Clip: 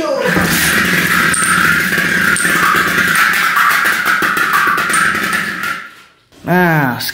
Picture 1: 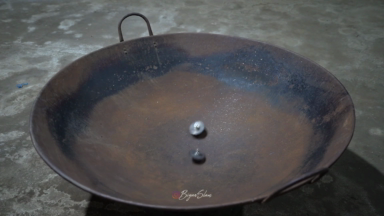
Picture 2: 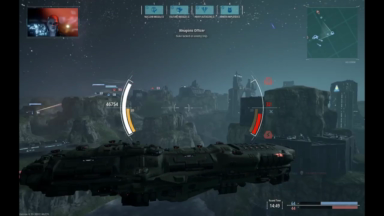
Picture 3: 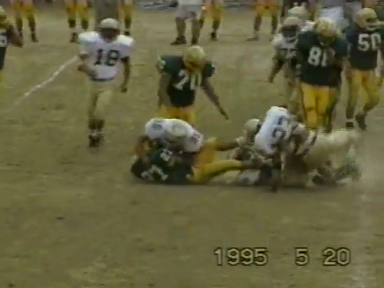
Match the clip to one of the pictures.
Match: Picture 1